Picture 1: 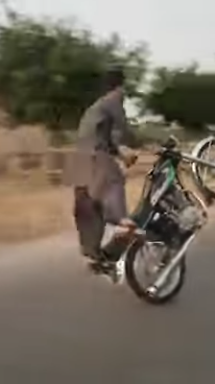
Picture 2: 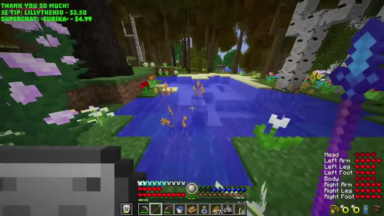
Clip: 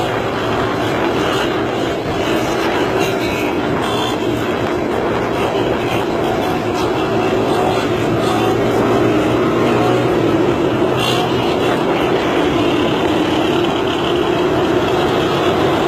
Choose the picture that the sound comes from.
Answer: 1